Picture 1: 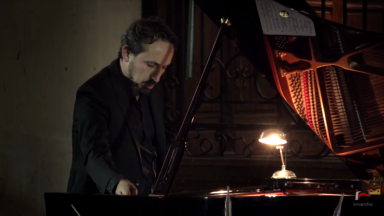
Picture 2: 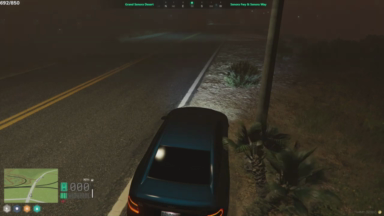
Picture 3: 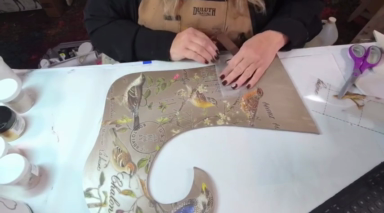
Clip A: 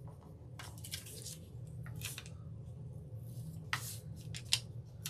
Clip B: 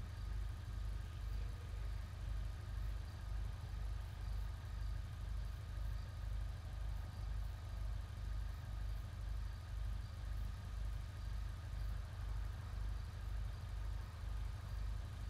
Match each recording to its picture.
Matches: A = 3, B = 2